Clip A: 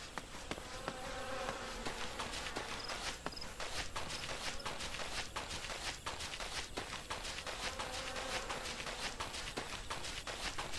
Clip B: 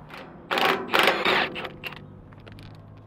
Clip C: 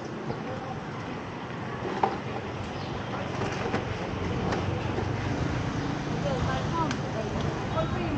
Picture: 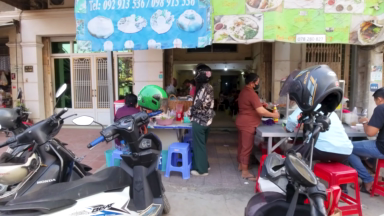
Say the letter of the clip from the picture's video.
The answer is C